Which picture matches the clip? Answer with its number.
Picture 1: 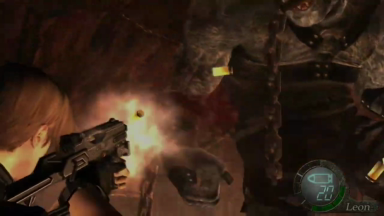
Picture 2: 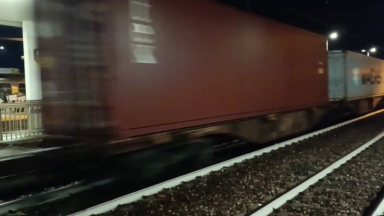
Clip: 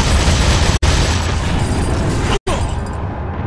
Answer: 1